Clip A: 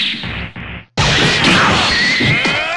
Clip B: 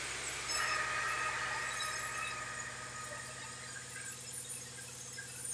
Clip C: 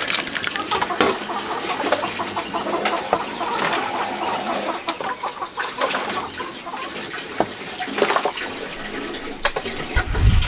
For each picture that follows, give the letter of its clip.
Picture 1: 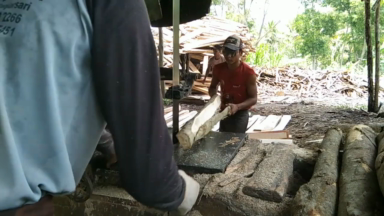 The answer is B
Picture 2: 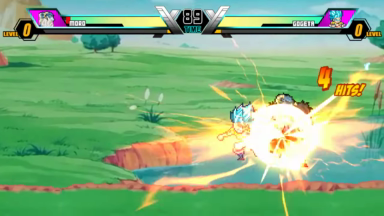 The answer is A